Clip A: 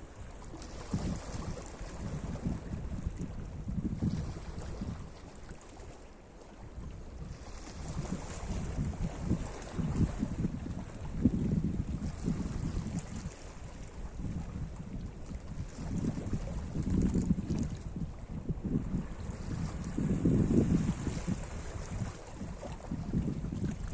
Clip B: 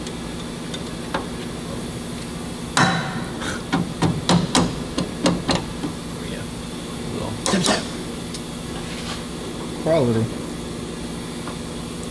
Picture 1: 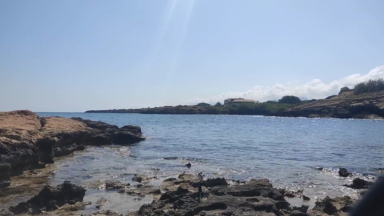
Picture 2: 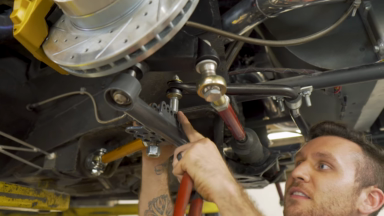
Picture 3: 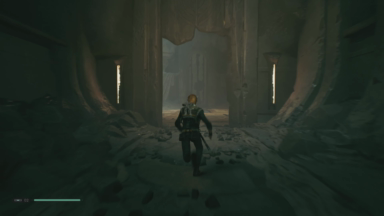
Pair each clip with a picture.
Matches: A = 1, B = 2